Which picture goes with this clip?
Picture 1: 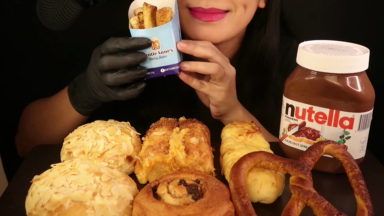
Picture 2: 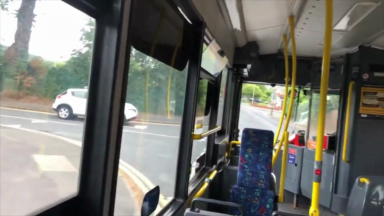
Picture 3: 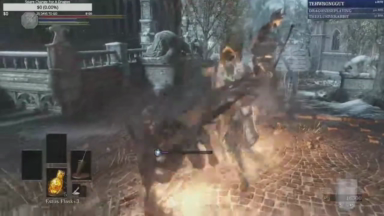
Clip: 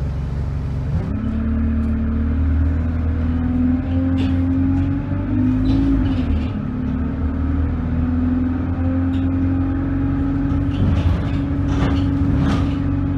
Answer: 2